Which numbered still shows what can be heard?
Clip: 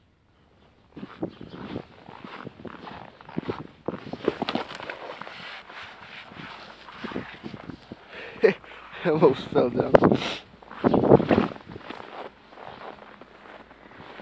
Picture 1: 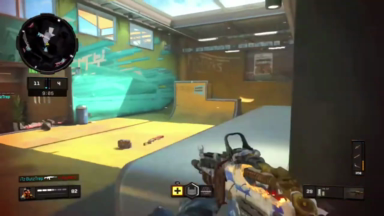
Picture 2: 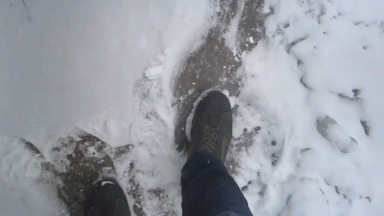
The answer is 2